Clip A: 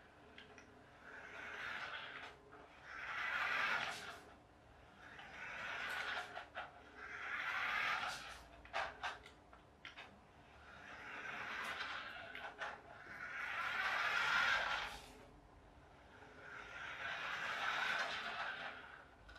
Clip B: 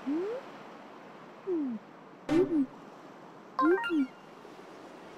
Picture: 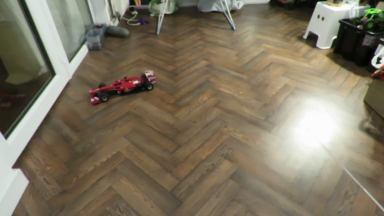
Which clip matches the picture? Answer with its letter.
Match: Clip A